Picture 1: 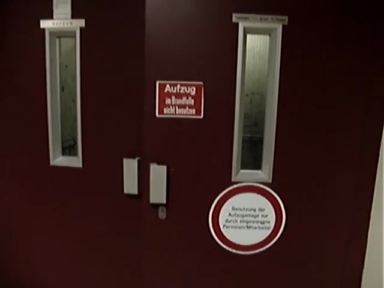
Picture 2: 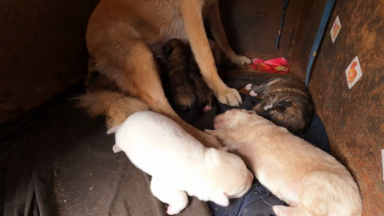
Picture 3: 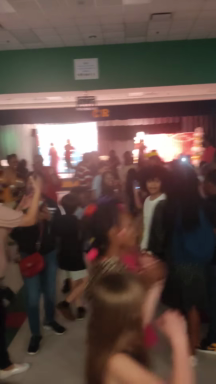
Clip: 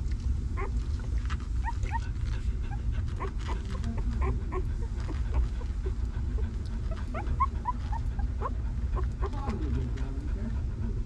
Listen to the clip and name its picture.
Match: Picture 2